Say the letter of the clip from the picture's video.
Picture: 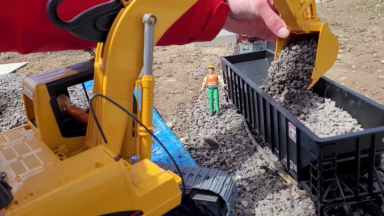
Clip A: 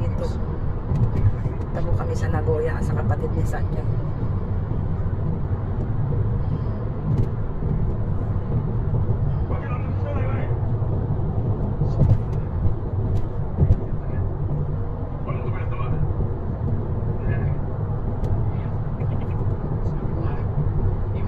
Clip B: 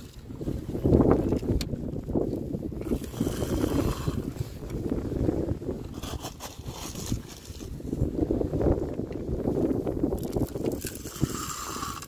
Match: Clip B